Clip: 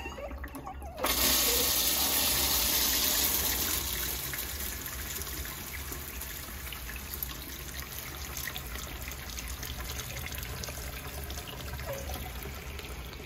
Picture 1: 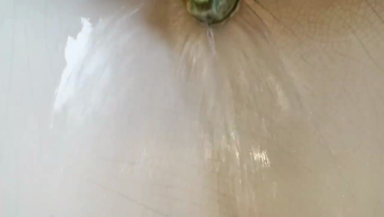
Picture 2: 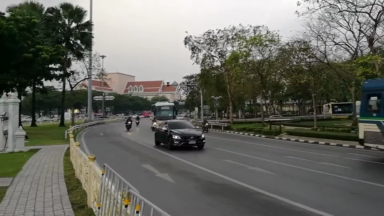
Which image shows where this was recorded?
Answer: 1